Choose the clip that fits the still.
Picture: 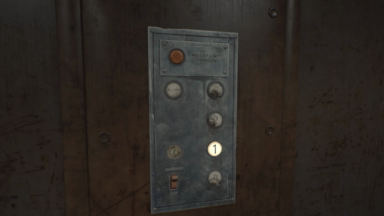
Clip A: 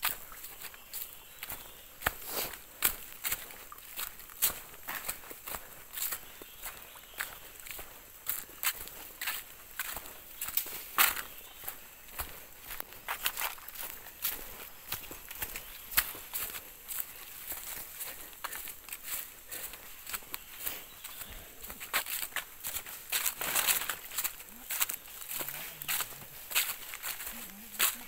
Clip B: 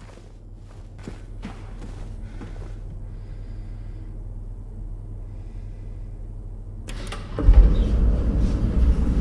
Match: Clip B